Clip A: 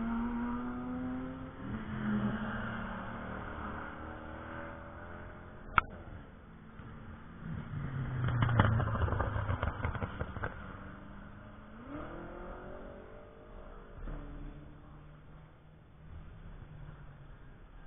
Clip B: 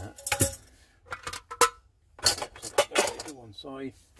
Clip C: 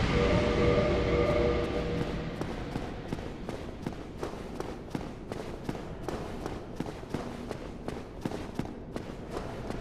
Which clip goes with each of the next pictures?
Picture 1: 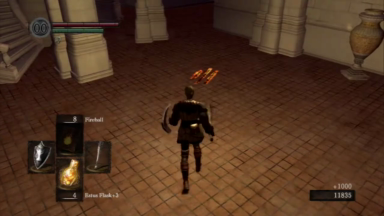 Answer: C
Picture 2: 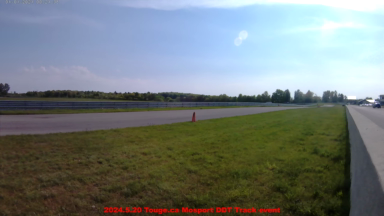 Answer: A